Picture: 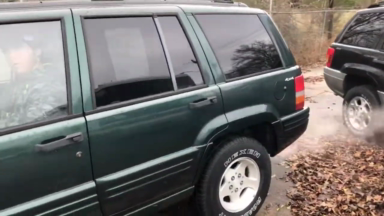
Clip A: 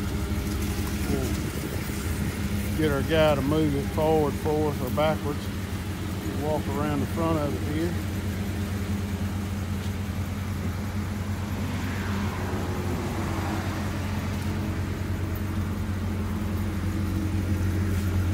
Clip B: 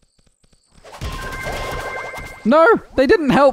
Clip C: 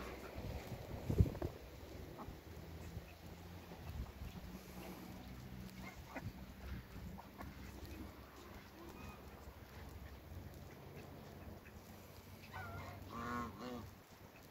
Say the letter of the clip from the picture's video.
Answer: A